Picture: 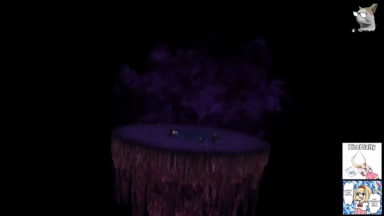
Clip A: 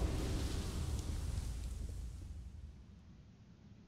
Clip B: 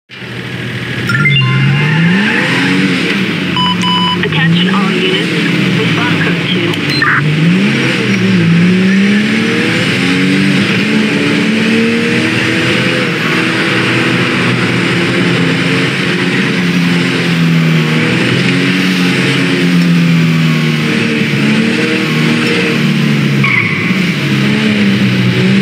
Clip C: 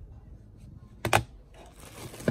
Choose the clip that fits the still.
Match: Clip A